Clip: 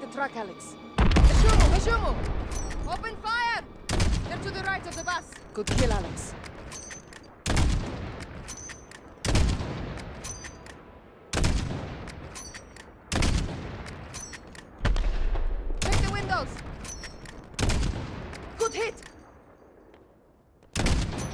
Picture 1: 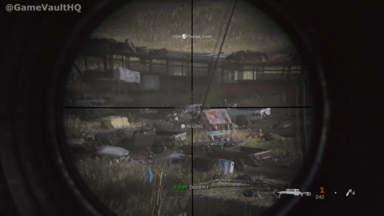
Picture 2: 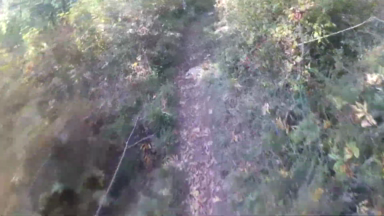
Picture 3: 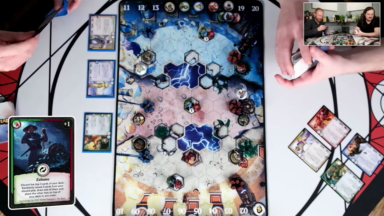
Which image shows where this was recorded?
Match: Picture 1